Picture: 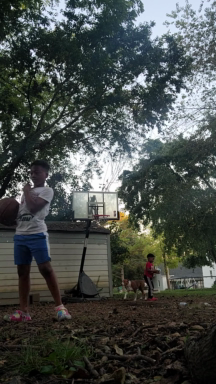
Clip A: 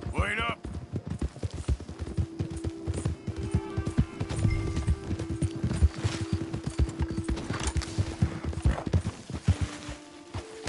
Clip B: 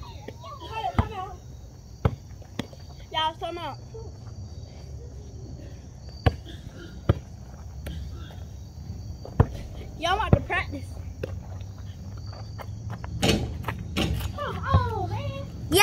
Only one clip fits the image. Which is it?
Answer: B